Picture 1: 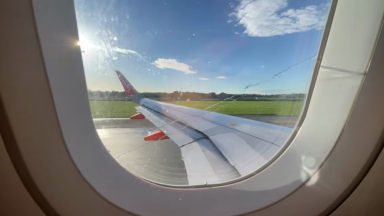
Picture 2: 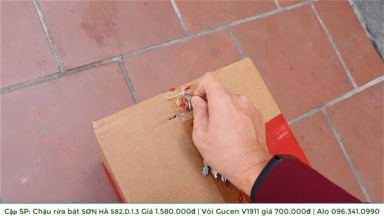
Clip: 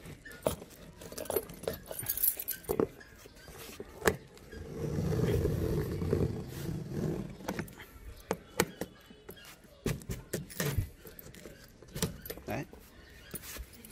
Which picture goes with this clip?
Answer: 2